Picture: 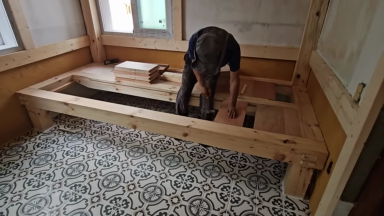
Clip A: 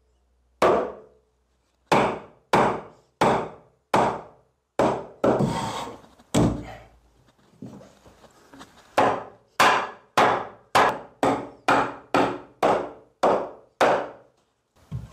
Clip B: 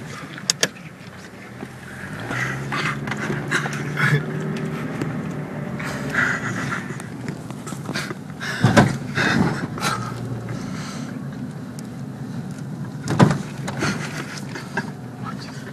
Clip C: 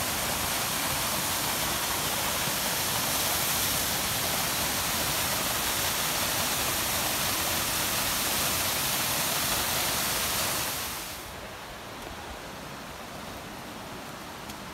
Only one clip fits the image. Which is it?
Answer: A